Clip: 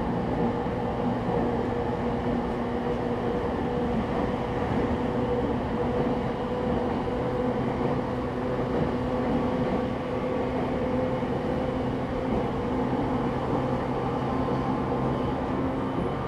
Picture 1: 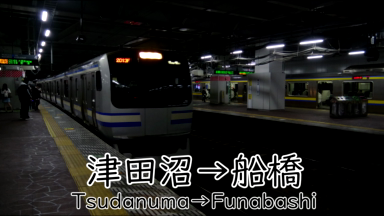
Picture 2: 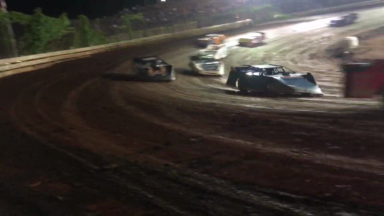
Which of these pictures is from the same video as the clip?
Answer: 1